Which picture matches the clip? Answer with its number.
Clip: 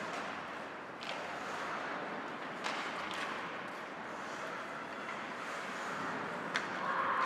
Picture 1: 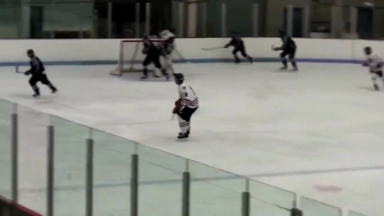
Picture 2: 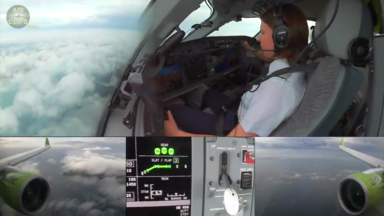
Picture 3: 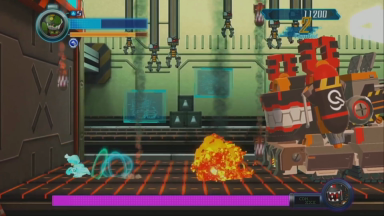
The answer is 1